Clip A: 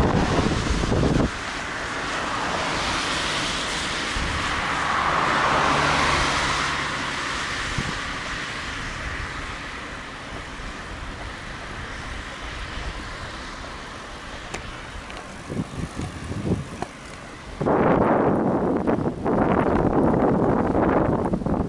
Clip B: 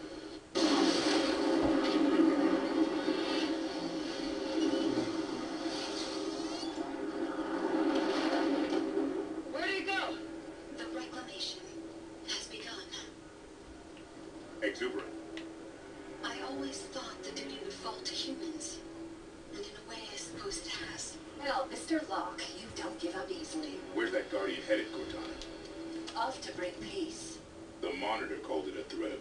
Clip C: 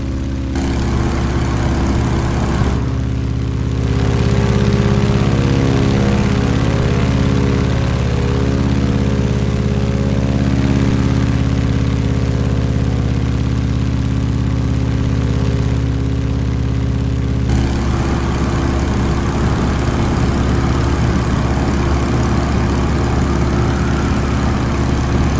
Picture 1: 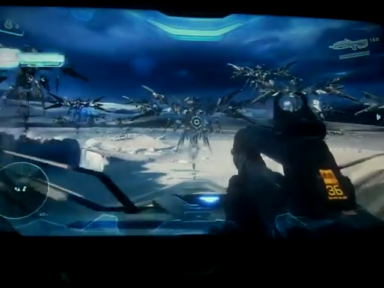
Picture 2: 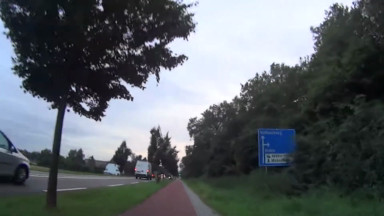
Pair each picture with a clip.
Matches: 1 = B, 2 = A